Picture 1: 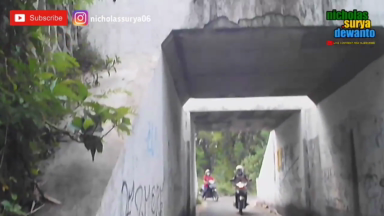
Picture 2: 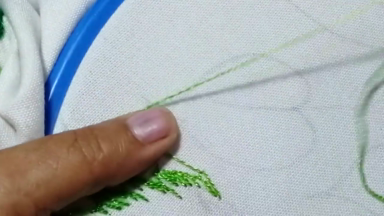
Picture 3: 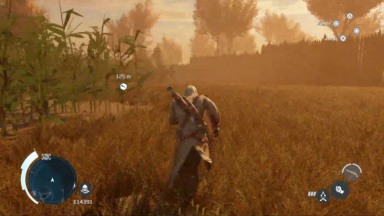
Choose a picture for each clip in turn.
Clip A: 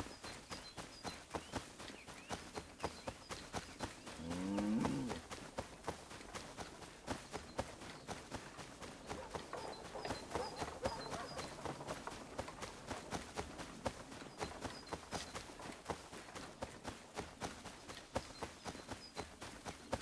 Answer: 3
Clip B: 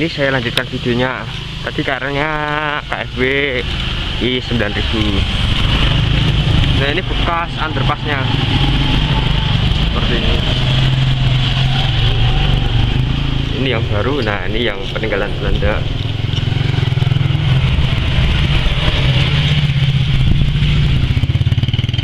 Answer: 1